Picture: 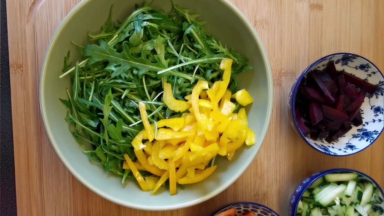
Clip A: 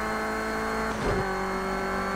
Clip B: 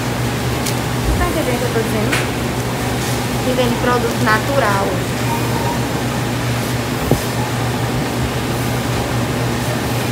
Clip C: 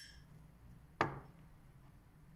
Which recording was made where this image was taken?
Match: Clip C